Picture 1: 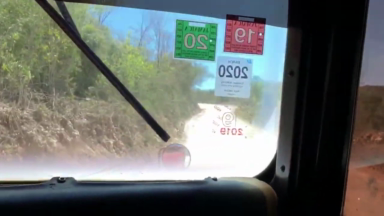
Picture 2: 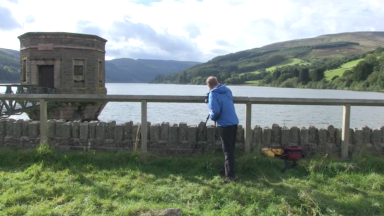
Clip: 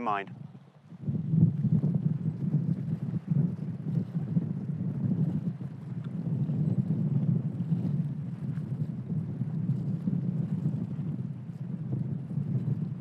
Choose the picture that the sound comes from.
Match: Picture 2